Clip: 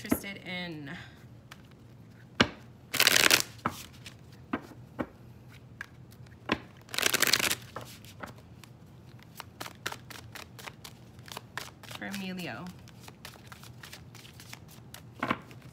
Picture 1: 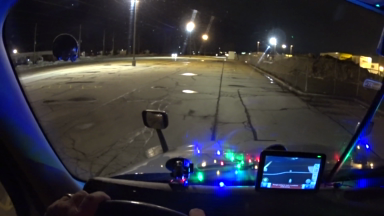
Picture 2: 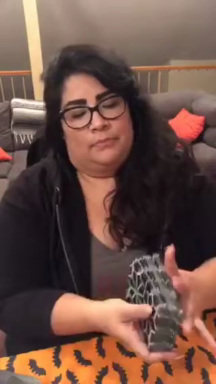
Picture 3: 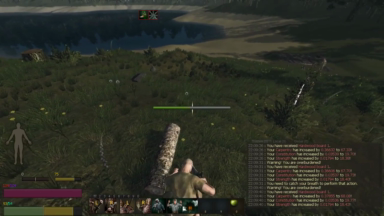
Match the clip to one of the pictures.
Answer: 2